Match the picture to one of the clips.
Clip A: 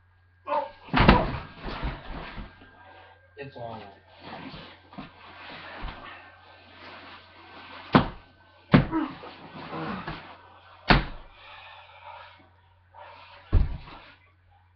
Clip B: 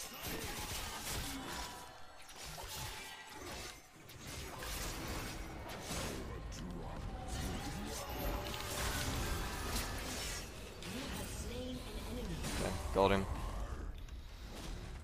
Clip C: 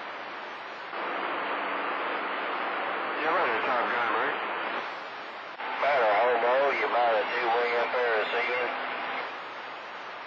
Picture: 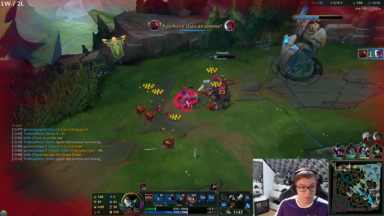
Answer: B